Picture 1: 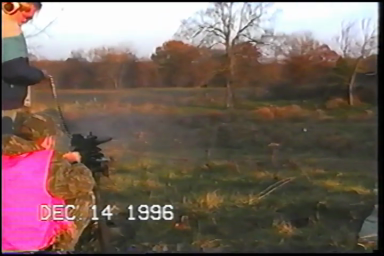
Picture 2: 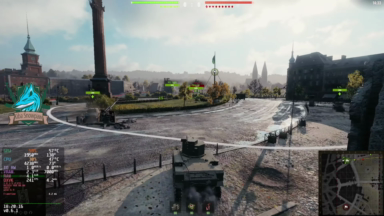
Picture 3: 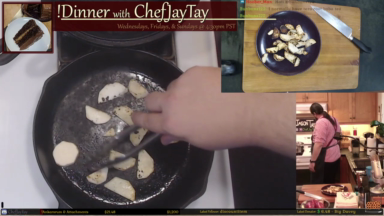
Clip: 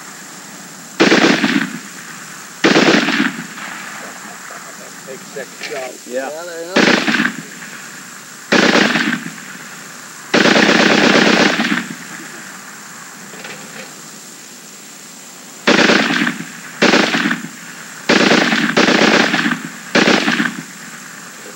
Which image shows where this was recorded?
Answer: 1